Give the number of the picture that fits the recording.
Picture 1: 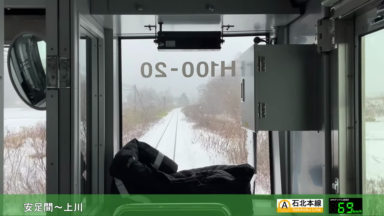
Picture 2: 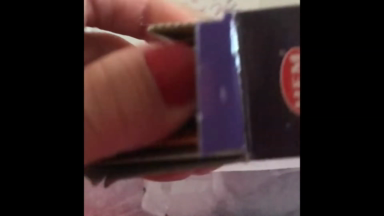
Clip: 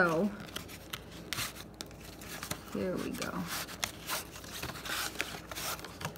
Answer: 2